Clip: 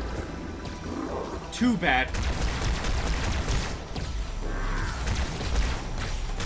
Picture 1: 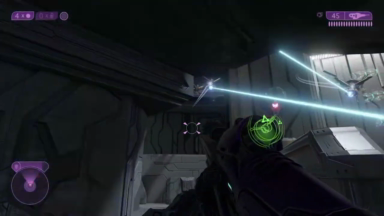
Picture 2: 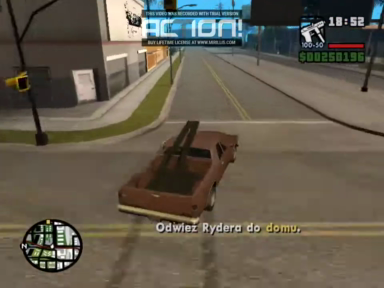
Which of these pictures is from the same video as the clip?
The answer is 1